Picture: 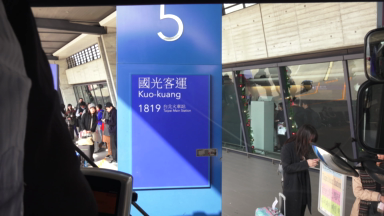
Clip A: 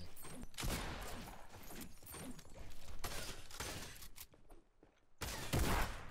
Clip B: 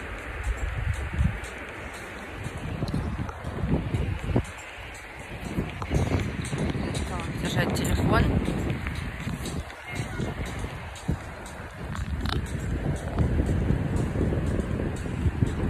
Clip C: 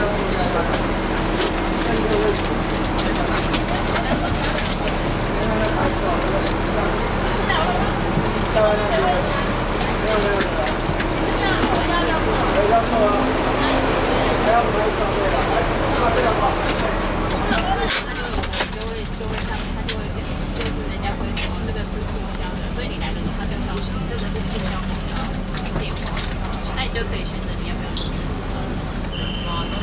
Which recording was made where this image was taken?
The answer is C